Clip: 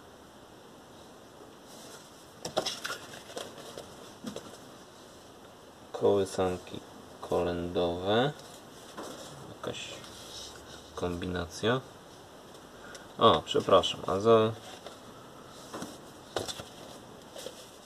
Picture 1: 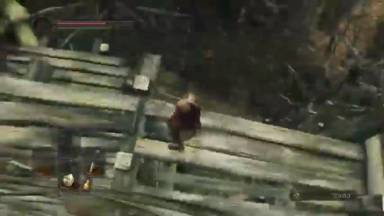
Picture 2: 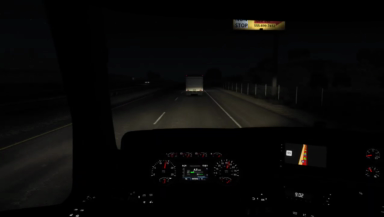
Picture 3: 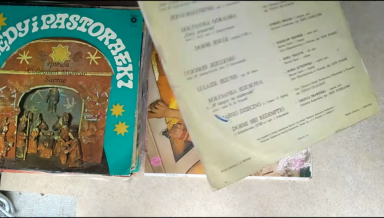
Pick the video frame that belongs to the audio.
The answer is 3